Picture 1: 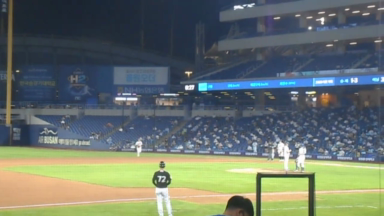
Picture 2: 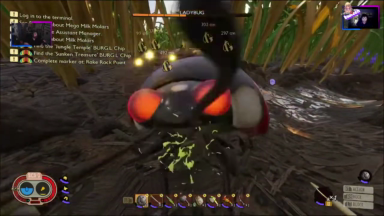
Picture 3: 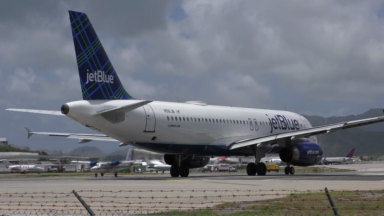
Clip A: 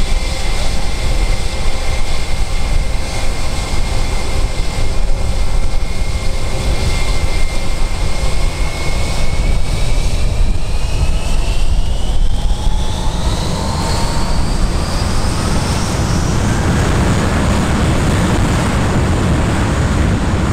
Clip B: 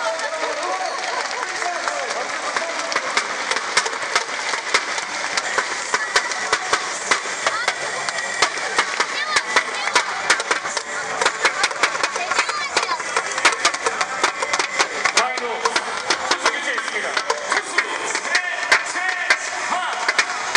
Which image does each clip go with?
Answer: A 3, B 1